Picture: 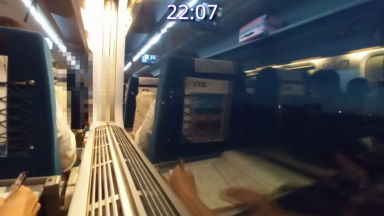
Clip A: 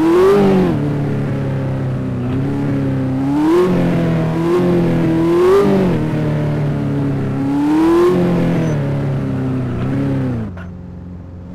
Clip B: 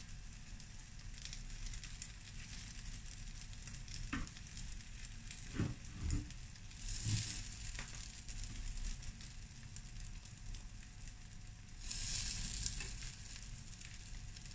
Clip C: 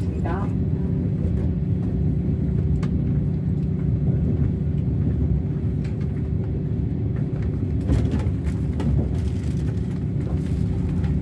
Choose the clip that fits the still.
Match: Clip C